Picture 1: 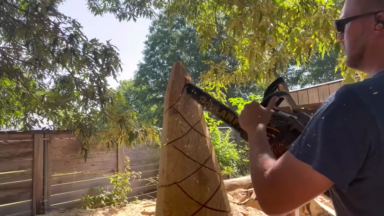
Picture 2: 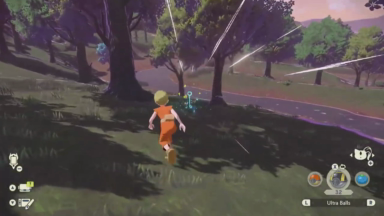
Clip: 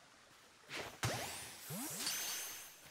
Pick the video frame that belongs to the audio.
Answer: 2